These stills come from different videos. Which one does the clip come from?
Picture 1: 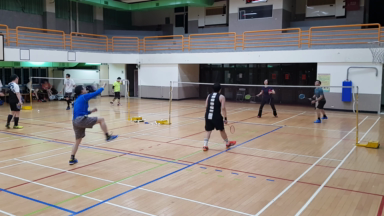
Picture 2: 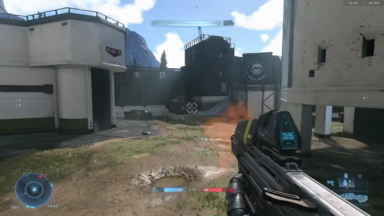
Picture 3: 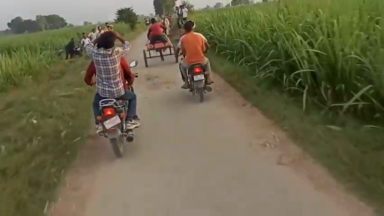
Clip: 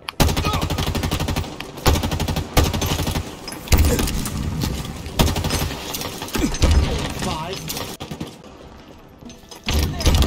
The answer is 2